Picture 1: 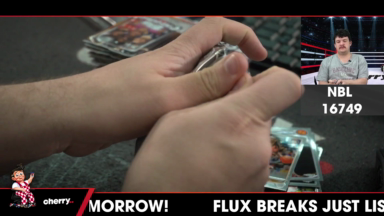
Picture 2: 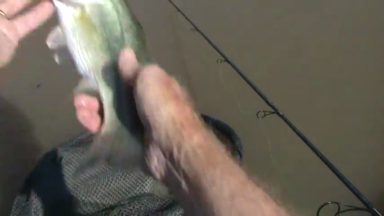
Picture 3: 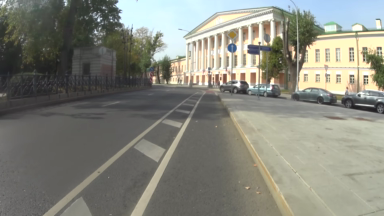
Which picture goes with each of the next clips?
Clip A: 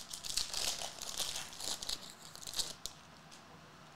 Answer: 1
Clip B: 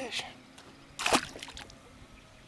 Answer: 2